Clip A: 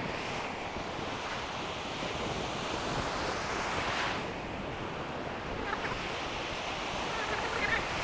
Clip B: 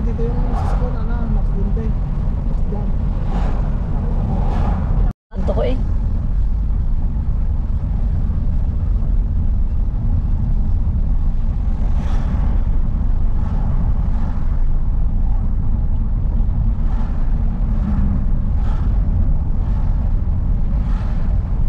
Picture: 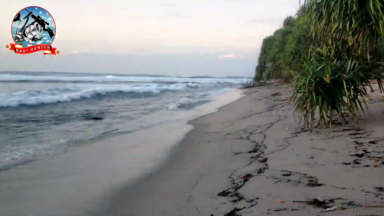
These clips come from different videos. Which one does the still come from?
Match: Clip A